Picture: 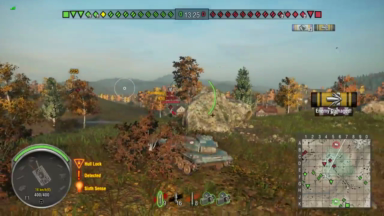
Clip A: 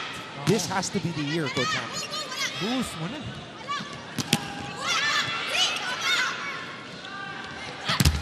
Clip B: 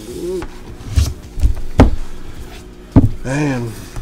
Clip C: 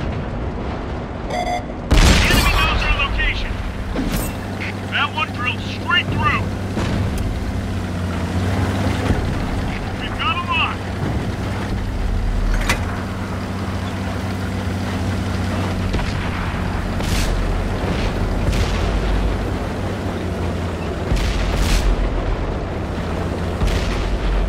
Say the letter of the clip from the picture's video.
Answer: C